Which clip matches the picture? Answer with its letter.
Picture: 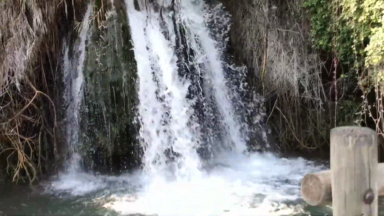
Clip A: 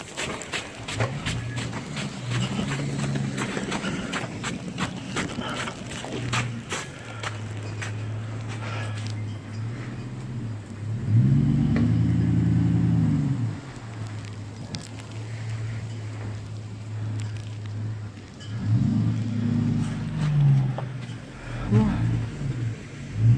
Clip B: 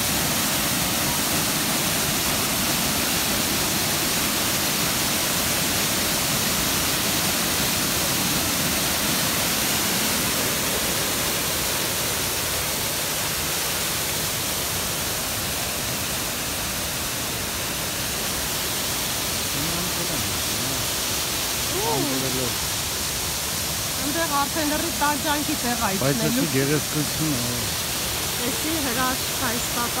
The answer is B